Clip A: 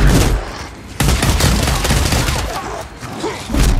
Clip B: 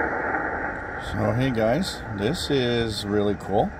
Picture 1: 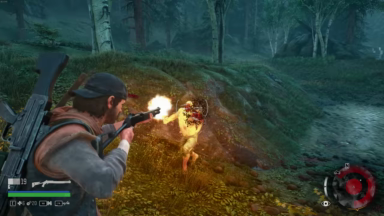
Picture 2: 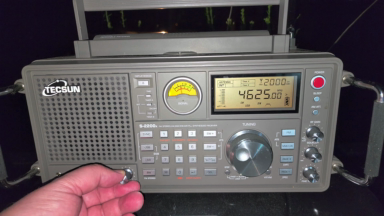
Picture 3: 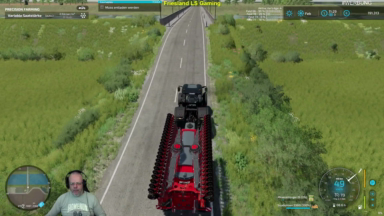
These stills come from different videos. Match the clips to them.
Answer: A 1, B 2